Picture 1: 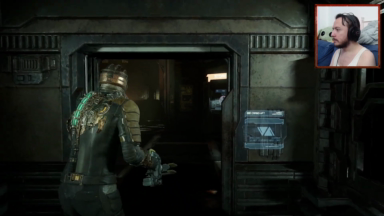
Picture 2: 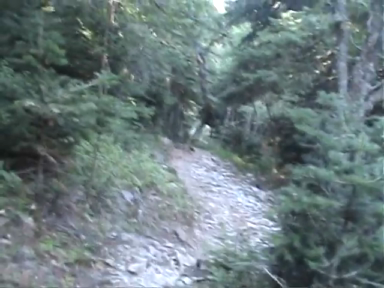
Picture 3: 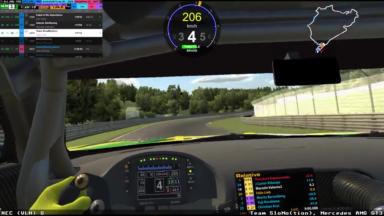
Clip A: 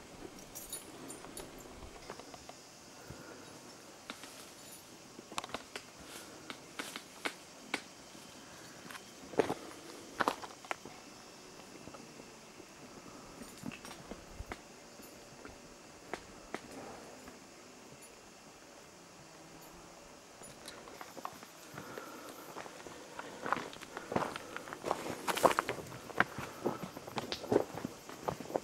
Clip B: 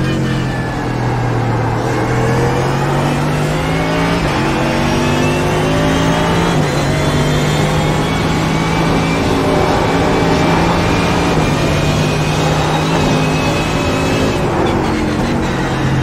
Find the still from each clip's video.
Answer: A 2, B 3